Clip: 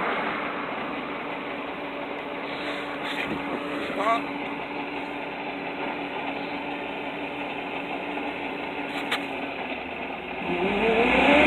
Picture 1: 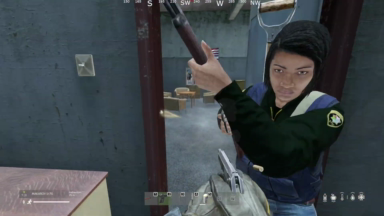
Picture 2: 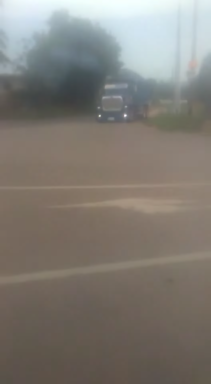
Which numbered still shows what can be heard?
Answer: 2